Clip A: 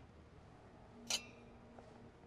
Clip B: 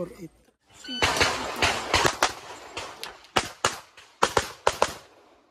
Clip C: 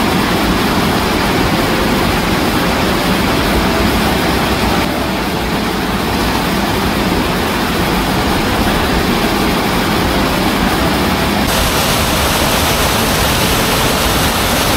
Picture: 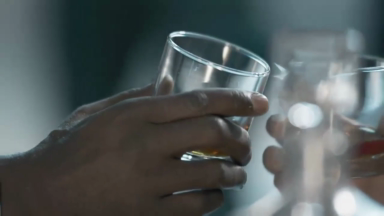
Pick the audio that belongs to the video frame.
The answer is A